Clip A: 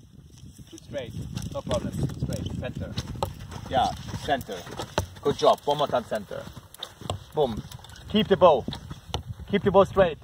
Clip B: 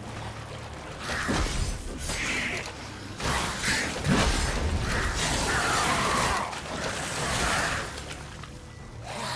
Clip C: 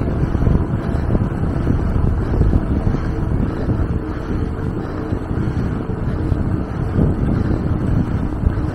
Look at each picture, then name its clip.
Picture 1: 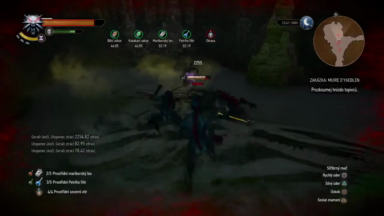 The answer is B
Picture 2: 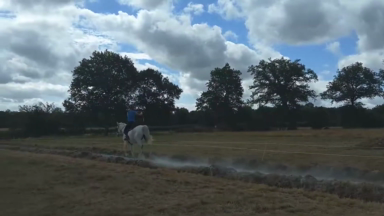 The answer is A